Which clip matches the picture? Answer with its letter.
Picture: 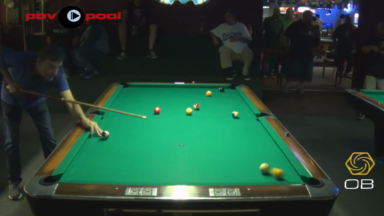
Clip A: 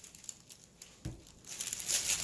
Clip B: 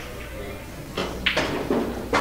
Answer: B